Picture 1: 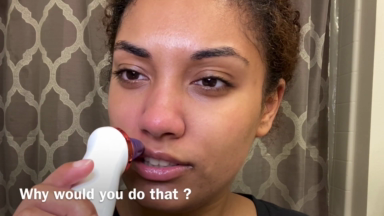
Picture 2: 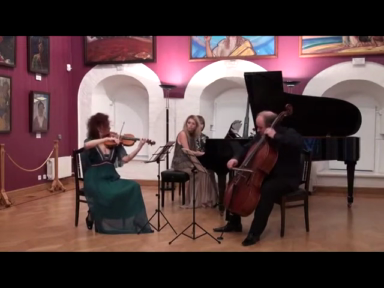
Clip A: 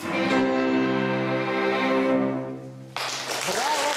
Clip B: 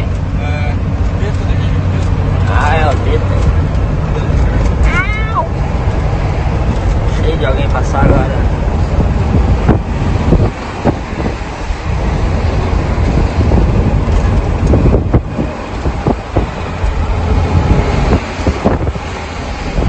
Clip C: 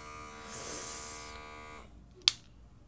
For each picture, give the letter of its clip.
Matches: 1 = C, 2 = A